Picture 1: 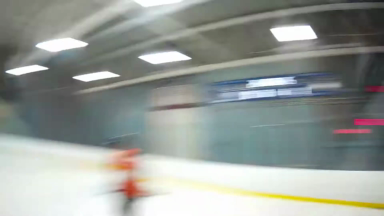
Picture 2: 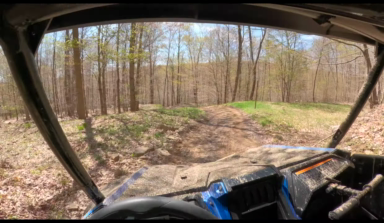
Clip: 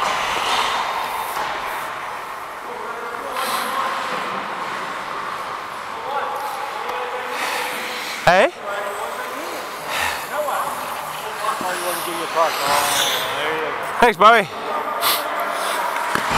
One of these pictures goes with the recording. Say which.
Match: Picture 1